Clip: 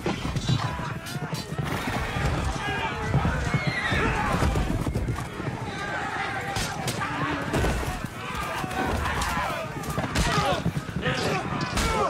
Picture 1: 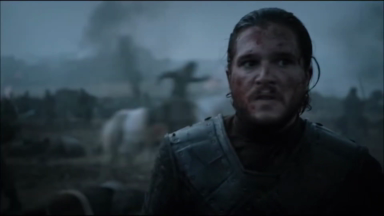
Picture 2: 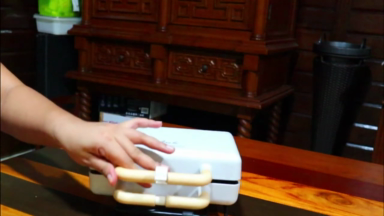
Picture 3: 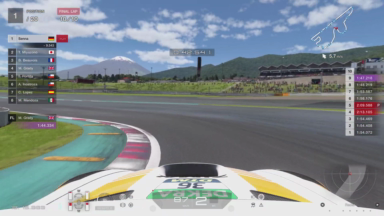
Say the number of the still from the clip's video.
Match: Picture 1